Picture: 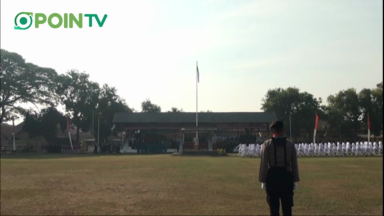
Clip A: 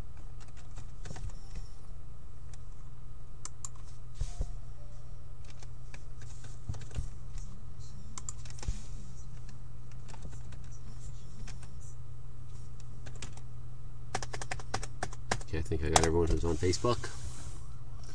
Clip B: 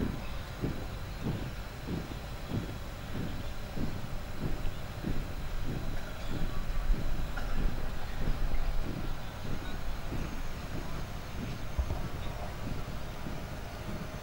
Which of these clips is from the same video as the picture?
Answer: B